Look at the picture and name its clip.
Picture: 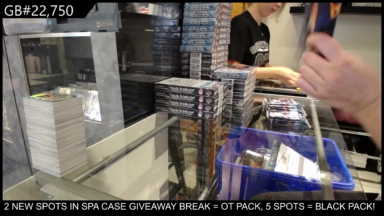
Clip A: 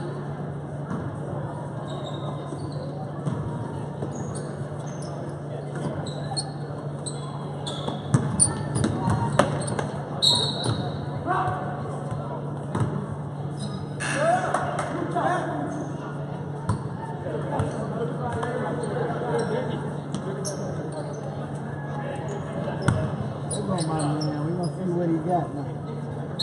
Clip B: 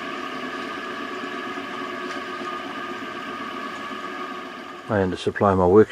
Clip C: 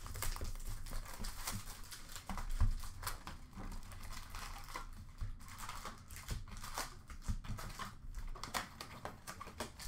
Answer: C